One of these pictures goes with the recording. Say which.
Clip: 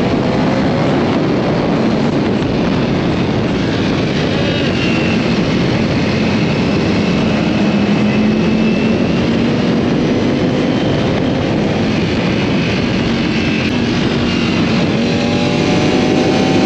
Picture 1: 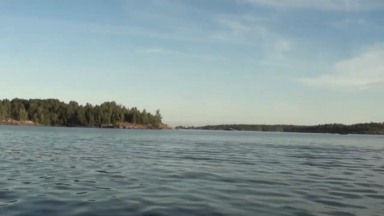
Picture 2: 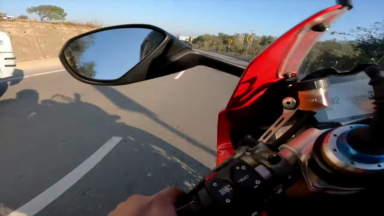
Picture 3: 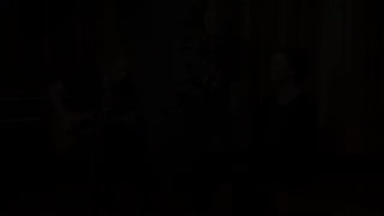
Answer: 2